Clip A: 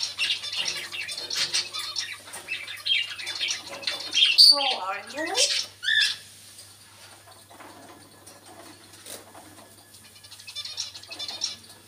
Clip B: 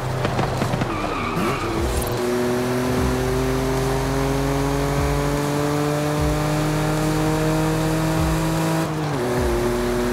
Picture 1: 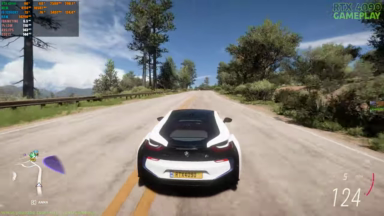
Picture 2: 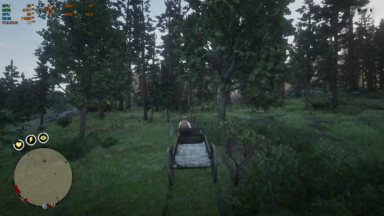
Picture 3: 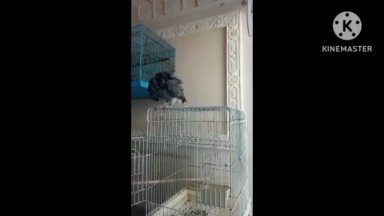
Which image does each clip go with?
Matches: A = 3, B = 1